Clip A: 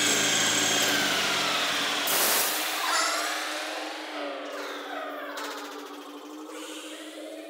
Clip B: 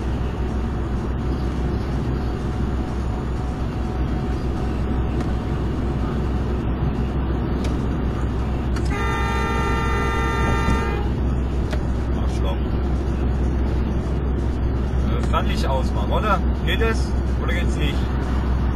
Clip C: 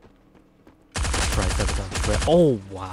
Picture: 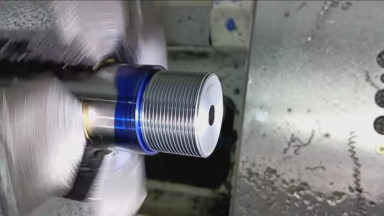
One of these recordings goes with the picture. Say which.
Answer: A